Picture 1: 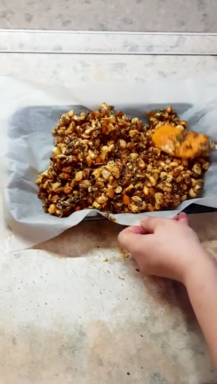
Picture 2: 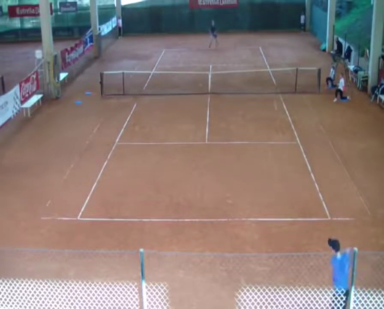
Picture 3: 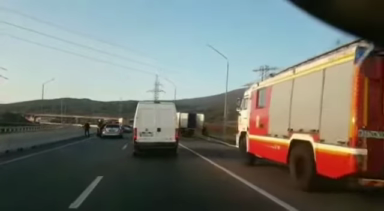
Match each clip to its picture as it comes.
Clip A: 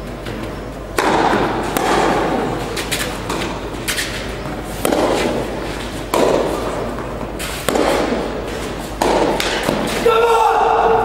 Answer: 2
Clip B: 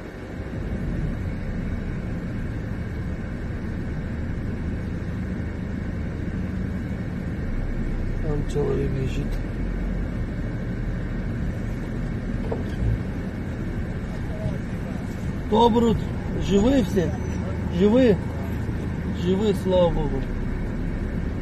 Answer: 3